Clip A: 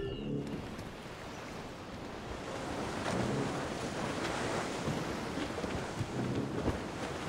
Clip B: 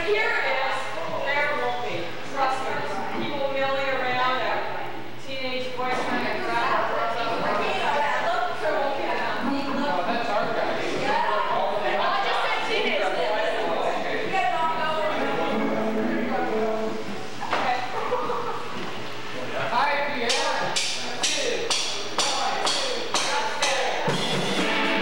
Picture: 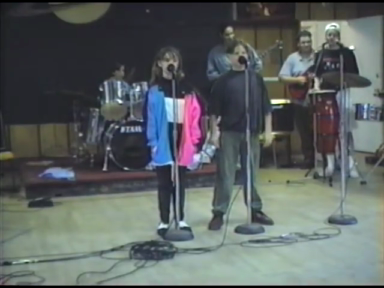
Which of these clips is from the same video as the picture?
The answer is B